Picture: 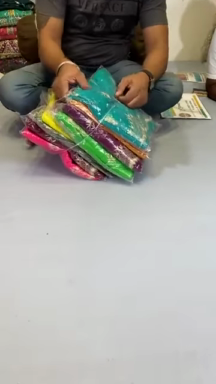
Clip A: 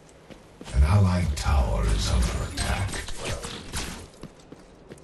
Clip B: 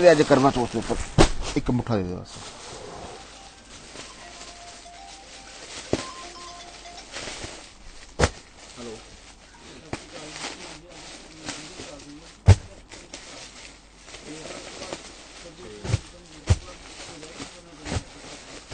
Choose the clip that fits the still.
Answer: B